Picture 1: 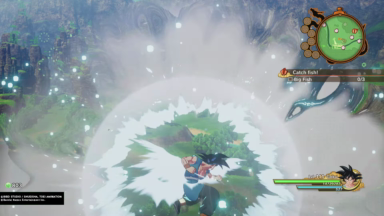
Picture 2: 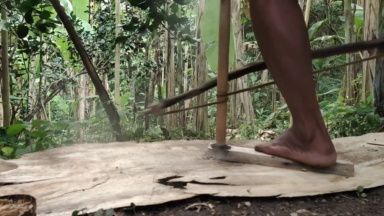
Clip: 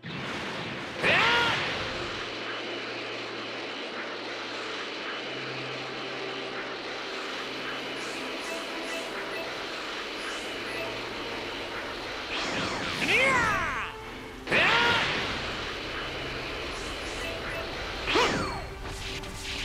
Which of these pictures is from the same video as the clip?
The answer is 1